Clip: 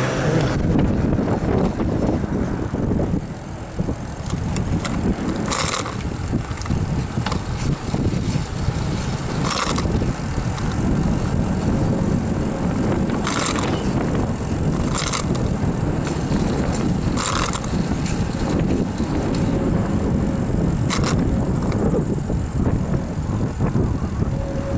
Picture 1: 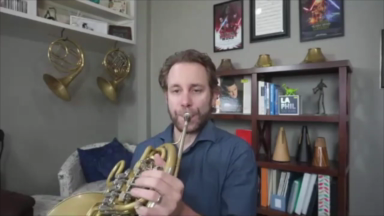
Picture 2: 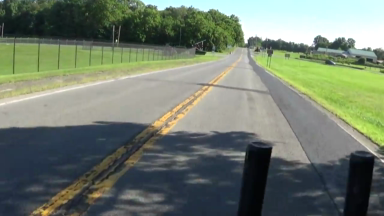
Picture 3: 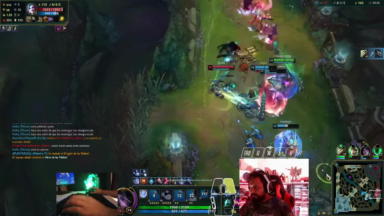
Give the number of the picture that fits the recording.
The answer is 2